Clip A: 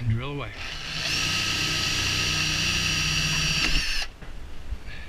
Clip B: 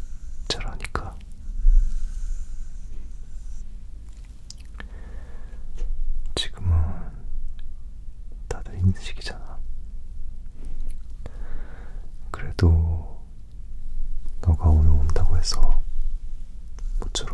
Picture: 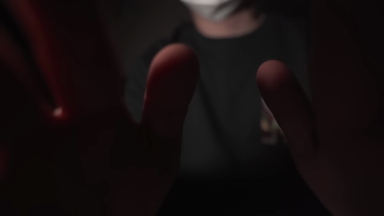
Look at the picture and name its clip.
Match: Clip B